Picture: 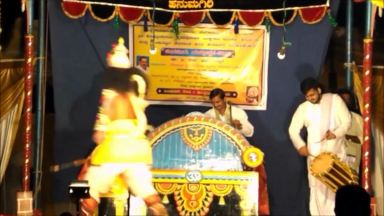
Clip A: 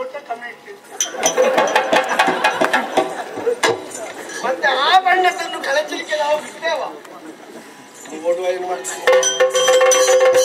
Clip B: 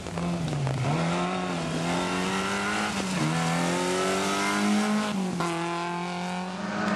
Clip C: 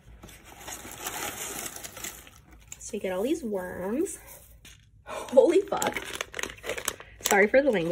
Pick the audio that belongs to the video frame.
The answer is A